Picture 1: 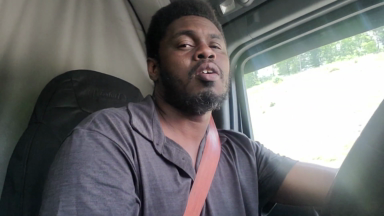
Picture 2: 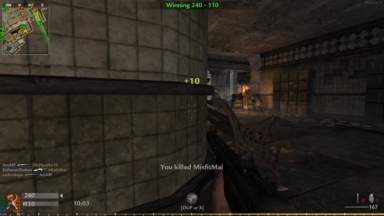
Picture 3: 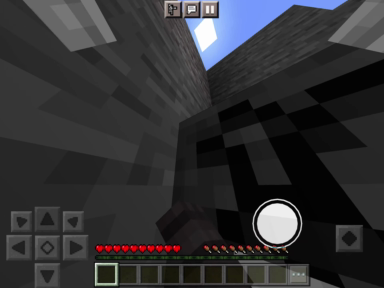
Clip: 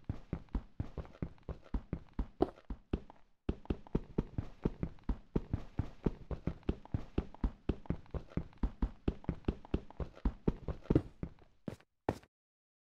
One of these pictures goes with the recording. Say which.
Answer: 3